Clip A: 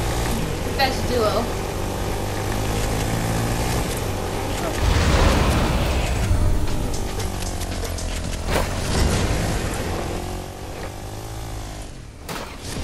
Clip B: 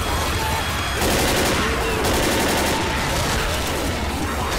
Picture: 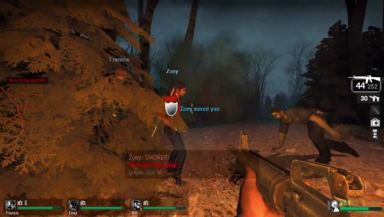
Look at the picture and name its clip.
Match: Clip B